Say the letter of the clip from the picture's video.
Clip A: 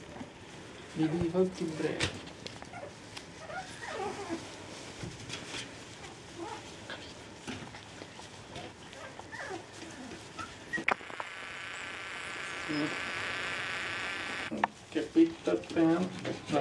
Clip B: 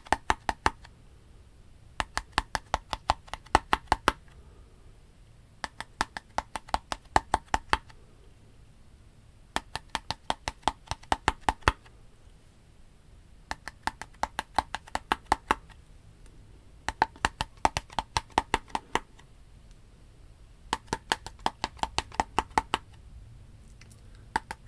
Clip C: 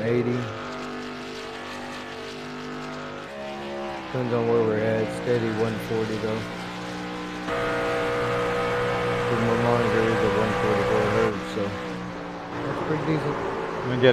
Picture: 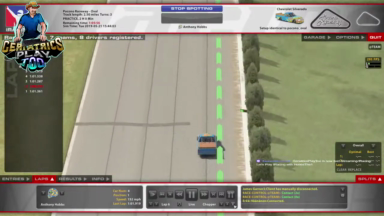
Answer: C